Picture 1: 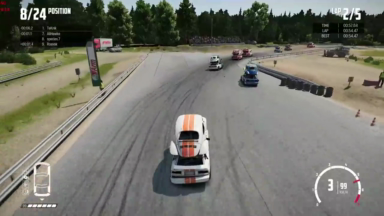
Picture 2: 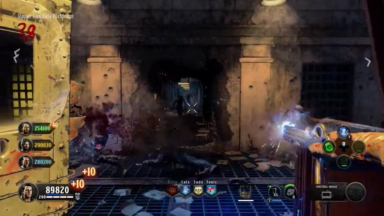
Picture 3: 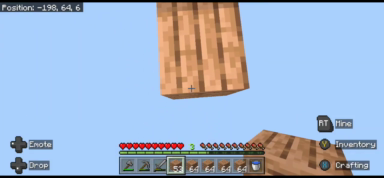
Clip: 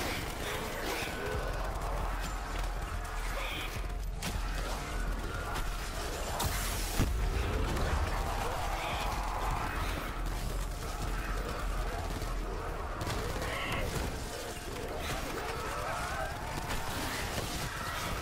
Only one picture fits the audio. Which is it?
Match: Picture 2